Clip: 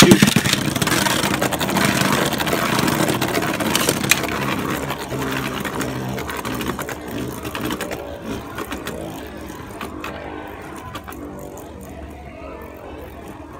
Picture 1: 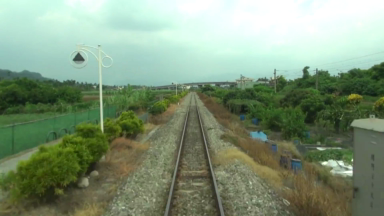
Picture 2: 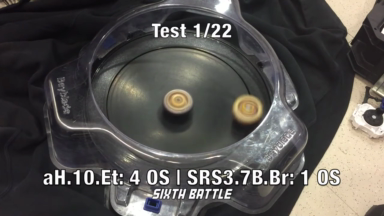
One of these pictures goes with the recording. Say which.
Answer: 2